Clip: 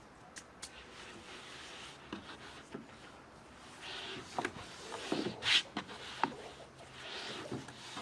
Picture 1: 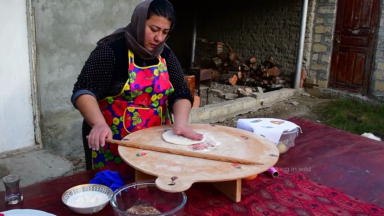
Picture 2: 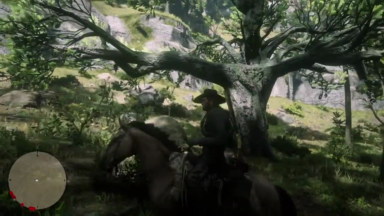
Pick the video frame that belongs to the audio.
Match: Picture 1